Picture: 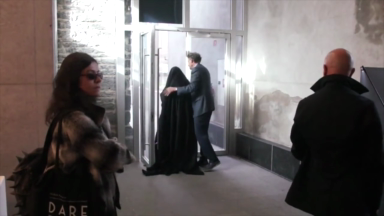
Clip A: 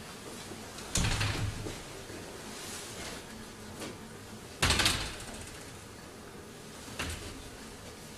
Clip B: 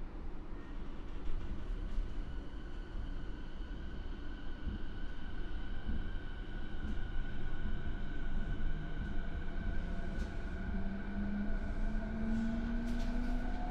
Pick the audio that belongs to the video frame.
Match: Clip A